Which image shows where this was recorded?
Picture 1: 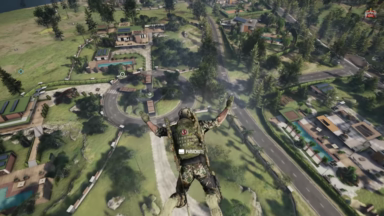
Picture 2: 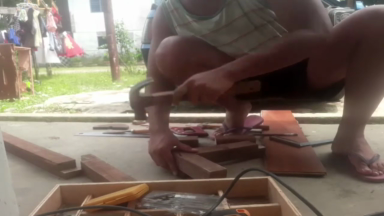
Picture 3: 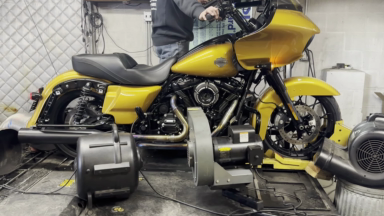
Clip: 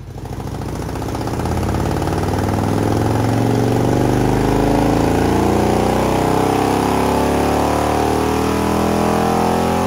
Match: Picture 3